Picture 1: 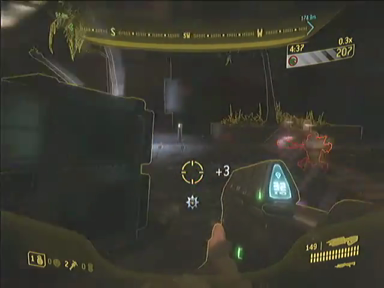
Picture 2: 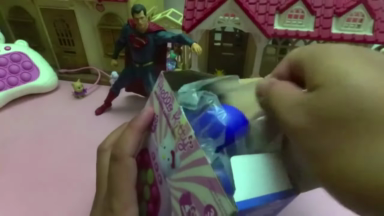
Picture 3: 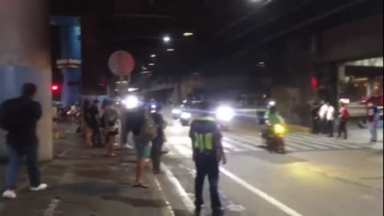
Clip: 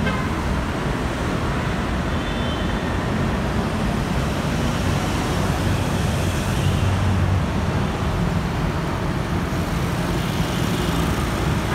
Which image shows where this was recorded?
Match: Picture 3